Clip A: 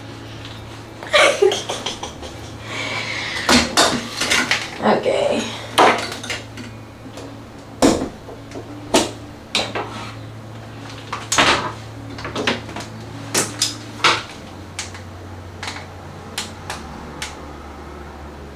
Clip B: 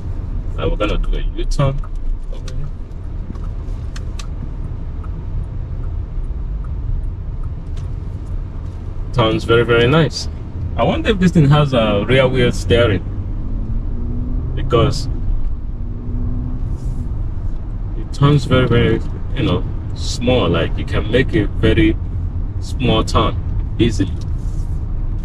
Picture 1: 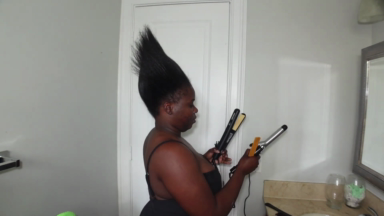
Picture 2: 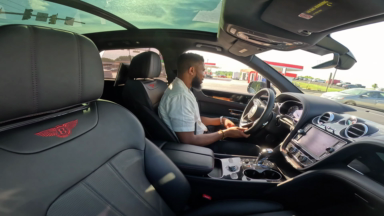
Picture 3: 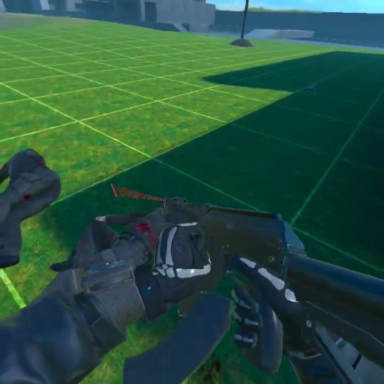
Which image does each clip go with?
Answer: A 1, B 2